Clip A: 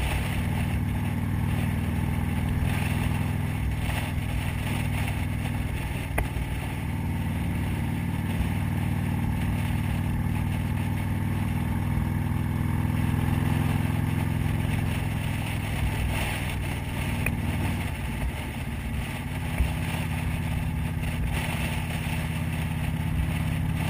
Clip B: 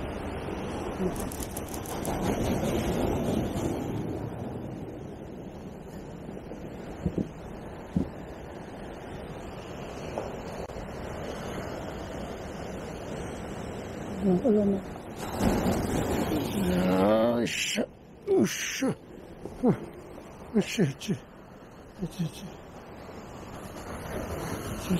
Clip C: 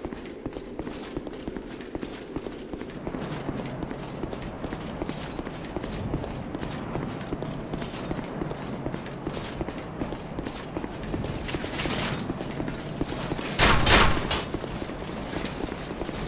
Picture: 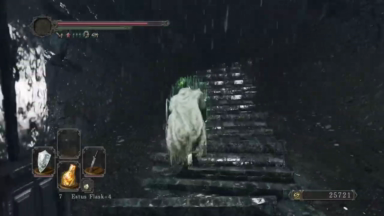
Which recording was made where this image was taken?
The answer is C